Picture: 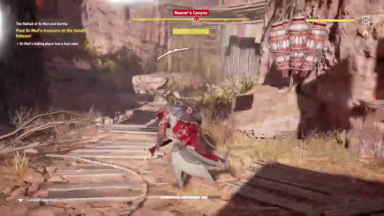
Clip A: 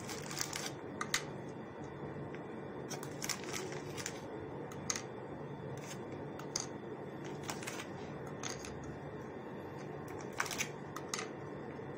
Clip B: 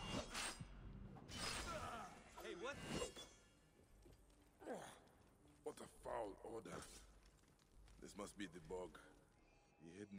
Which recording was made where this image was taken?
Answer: B